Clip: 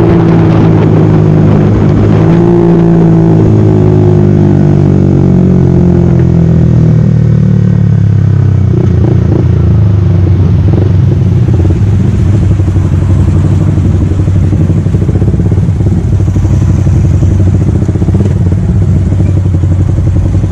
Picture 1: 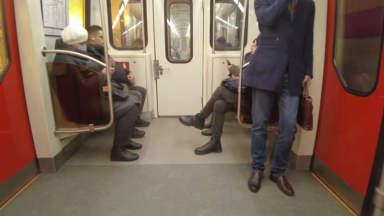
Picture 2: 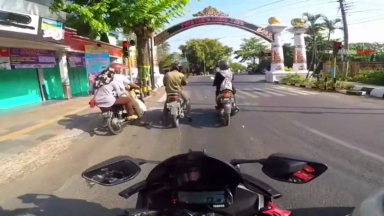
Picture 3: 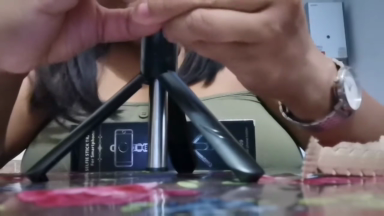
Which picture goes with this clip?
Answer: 2